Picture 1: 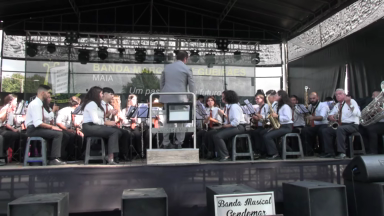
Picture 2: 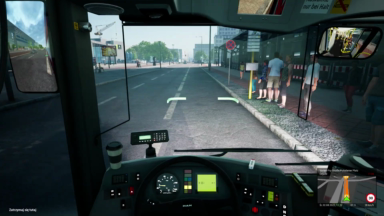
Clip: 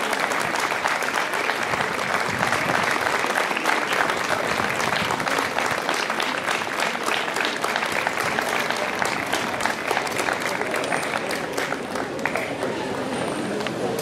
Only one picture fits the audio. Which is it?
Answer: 1